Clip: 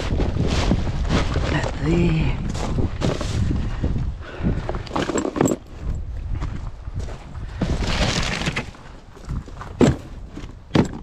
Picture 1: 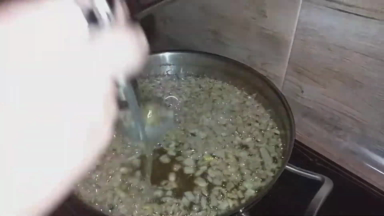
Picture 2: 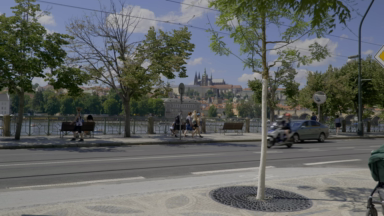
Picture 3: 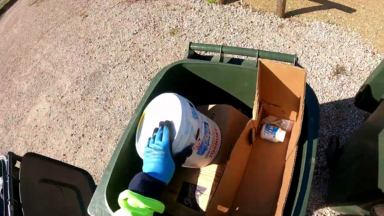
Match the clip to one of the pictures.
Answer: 3